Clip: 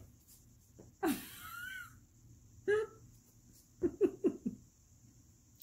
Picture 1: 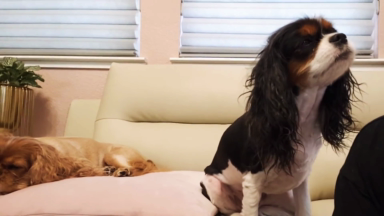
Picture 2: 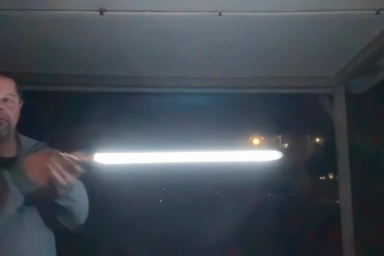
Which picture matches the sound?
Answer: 1